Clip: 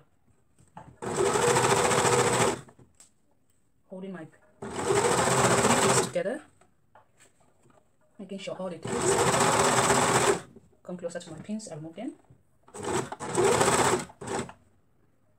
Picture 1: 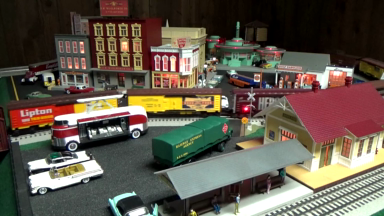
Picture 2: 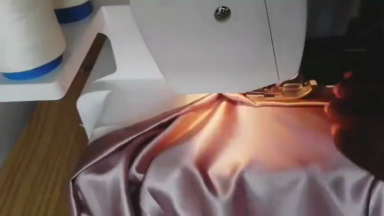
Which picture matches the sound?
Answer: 2